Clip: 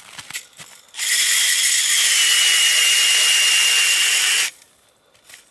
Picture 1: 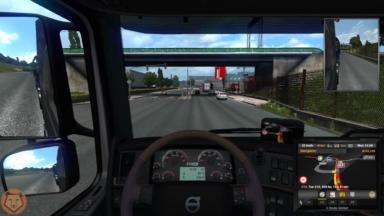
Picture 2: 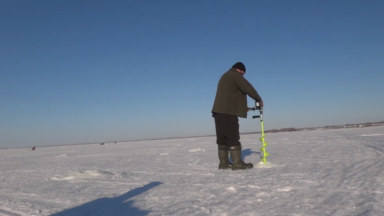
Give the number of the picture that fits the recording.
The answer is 2